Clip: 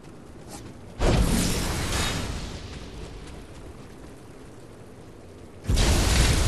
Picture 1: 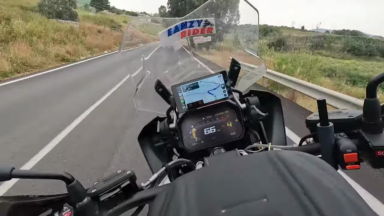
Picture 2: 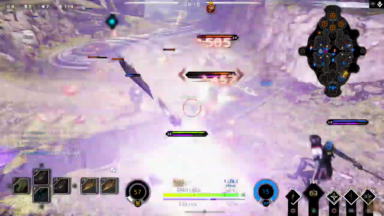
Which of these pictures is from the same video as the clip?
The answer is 2